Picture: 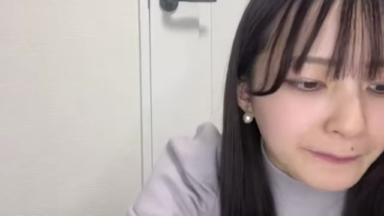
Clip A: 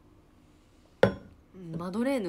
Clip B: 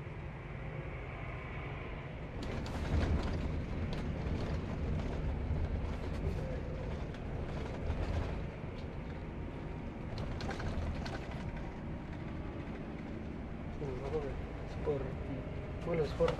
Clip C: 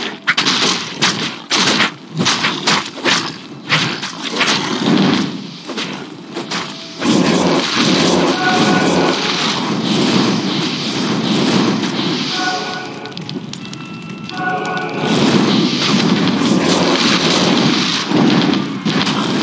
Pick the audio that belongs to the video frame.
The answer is A